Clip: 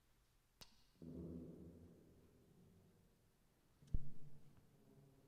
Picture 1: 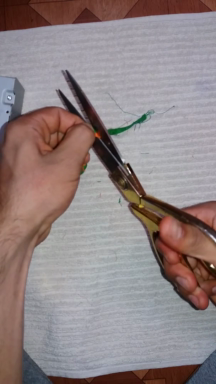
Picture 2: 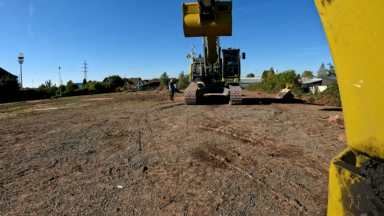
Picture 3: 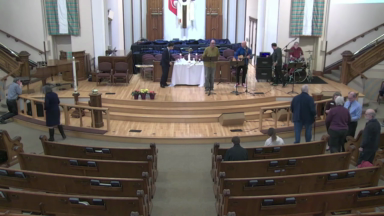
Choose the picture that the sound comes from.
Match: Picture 3